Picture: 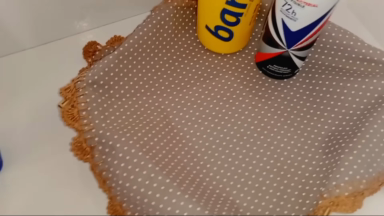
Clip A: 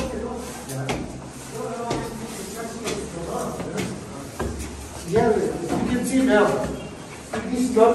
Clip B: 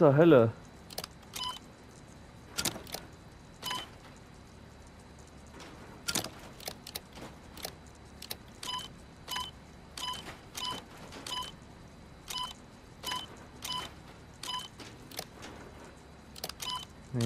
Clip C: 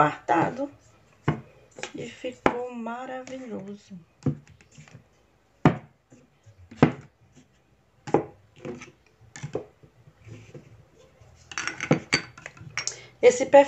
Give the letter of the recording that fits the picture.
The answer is C